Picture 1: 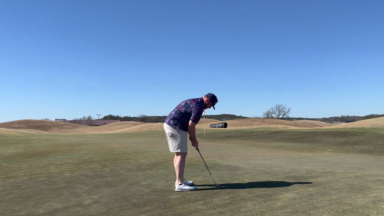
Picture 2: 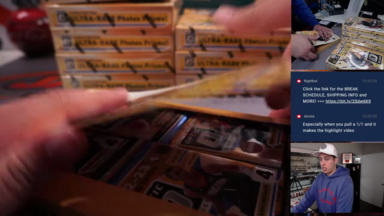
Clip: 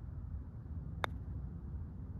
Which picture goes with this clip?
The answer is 1